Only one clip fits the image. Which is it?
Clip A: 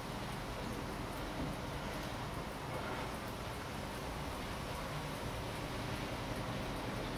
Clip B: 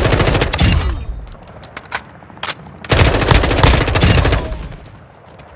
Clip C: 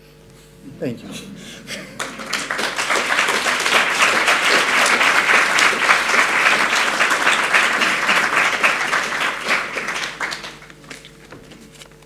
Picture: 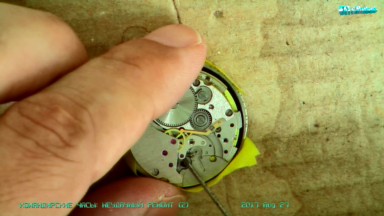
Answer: A